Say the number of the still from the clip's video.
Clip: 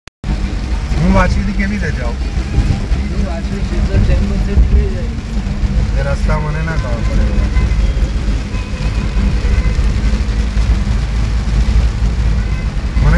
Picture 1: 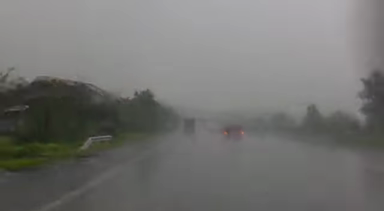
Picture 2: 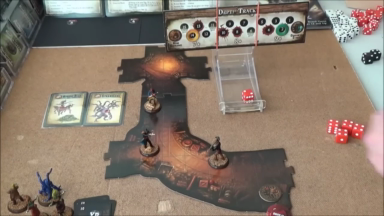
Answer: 1